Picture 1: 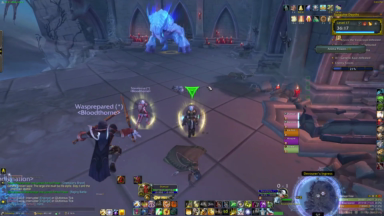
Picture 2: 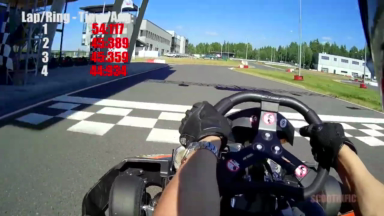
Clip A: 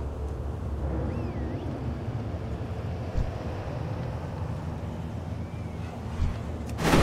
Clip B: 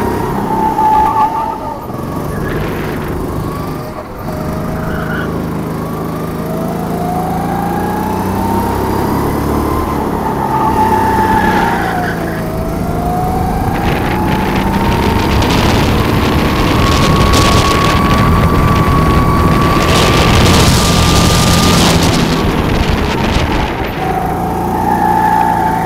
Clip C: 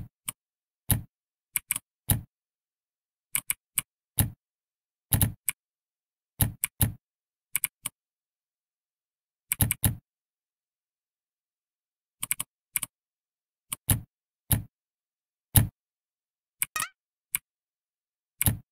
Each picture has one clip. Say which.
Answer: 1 A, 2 B